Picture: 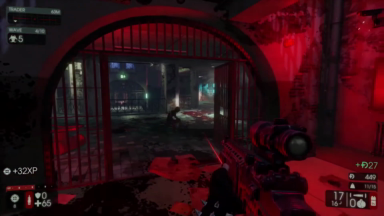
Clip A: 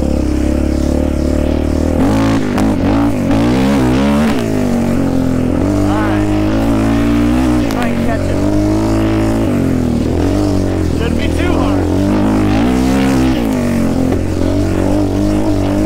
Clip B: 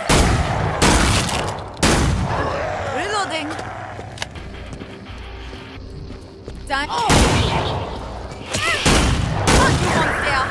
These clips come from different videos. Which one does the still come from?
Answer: B